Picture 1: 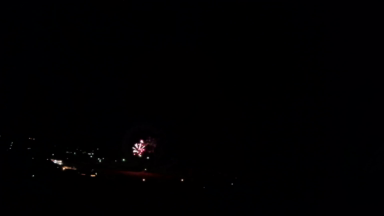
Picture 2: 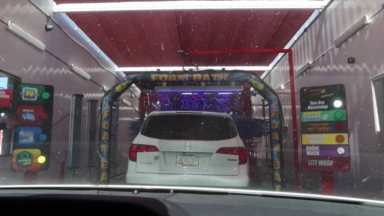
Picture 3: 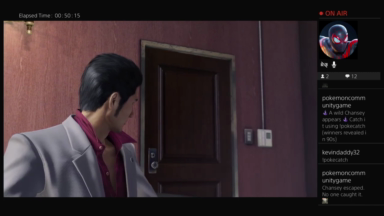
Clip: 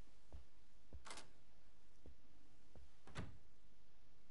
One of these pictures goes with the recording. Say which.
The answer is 3